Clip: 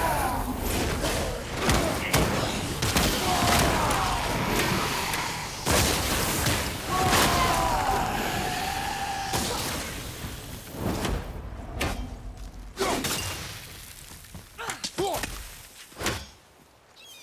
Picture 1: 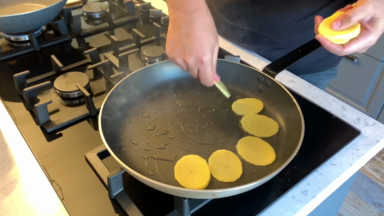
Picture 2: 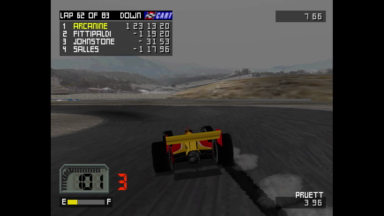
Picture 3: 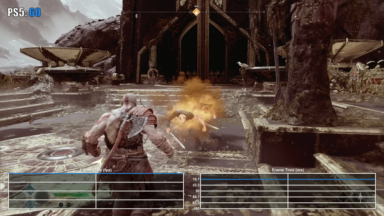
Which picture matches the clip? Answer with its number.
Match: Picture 3